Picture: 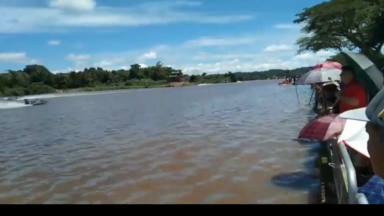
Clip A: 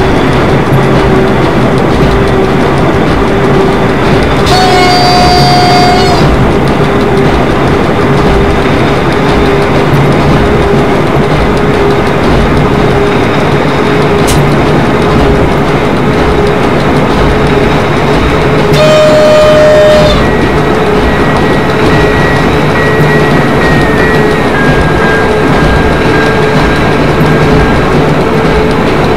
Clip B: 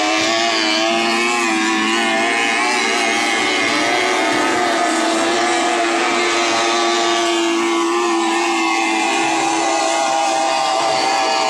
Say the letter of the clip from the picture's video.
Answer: B